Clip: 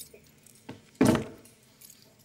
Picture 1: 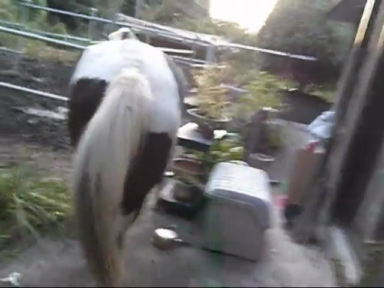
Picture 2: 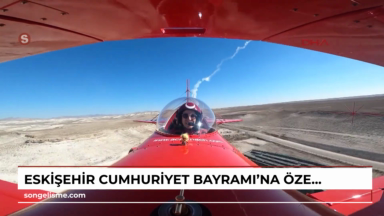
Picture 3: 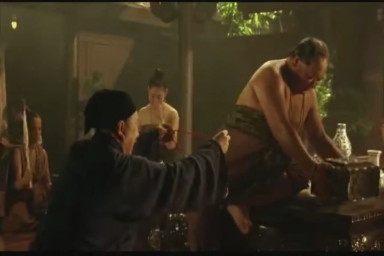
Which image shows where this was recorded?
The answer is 3